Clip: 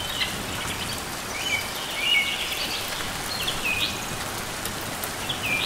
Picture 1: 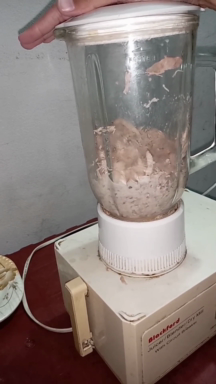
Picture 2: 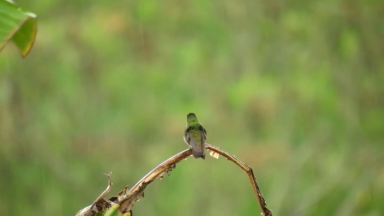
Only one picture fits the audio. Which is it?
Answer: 2